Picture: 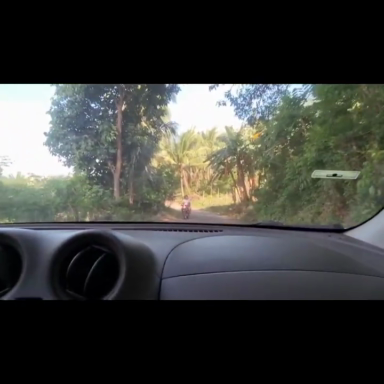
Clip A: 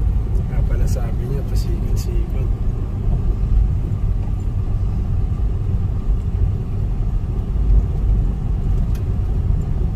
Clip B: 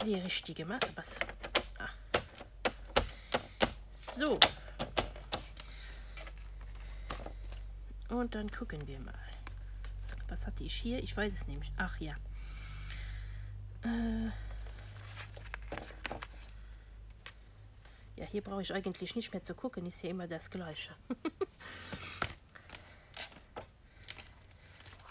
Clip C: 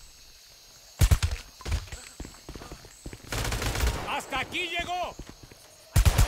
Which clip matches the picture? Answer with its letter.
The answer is A